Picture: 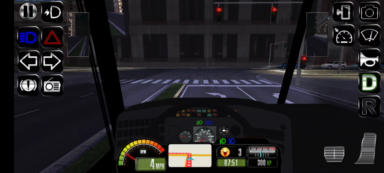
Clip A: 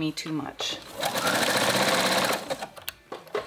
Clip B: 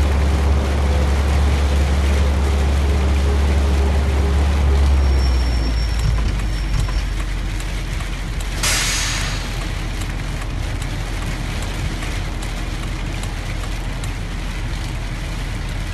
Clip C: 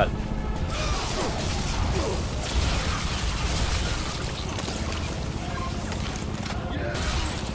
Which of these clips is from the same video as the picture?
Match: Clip B